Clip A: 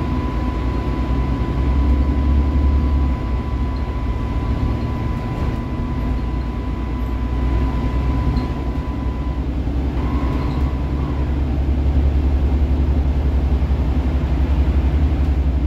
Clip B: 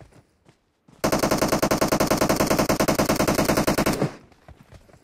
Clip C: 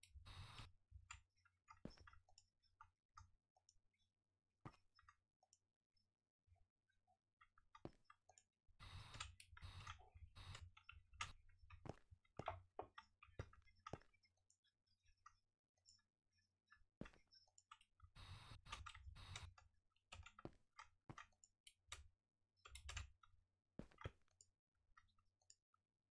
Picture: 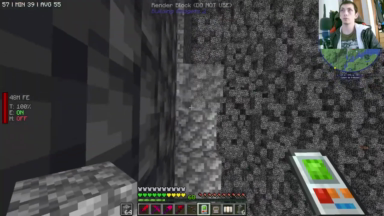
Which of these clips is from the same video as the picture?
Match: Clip C